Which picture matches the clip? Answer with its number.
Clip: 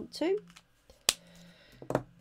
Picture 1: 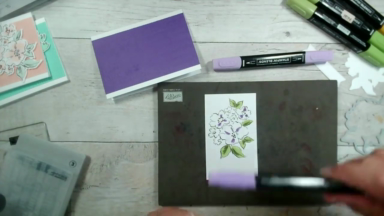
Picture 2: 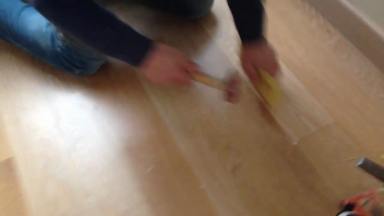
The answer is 1